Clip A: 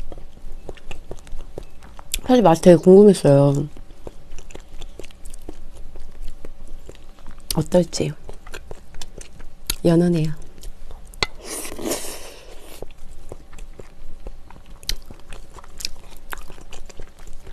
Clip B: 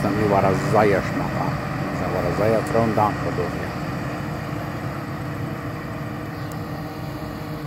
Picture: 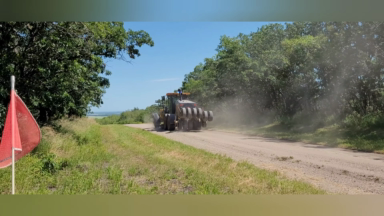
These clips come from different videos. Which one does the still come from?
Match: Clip B